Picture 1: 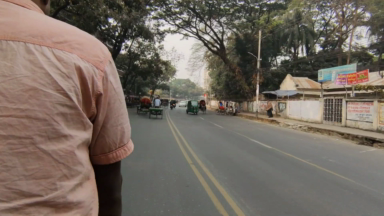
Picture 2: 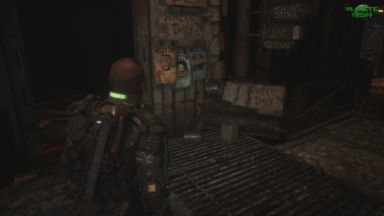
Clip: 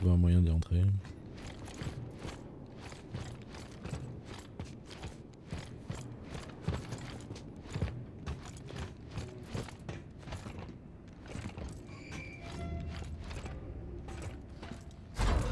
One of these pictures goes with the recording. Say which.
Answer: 2